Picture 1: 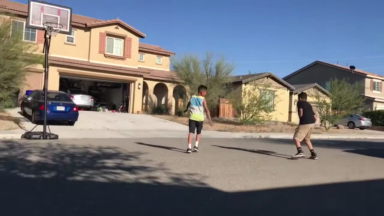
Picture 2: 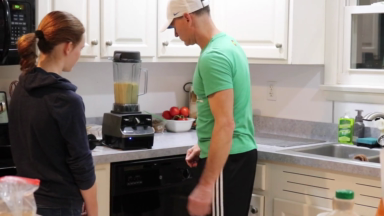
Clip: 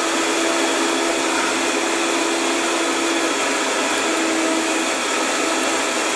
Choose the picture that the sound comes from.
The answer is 2